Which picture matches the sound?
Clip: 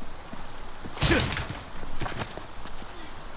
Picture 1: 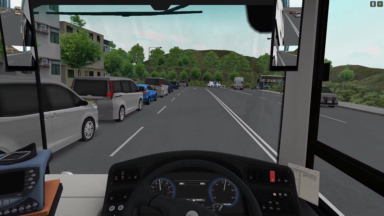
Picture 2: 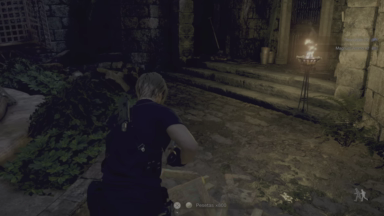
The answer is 2